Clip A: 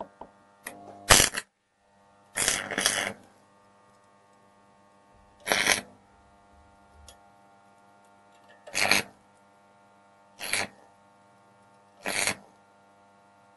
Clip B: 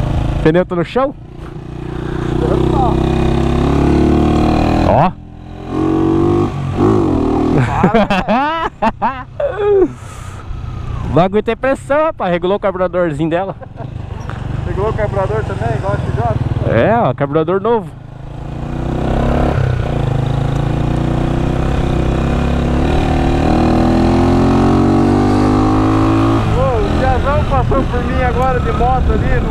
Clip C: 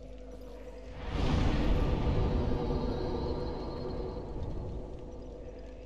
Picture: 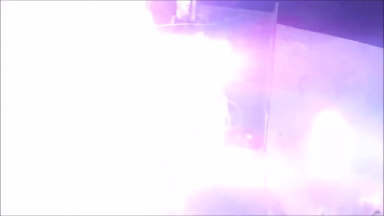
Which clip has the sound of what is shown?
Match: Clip A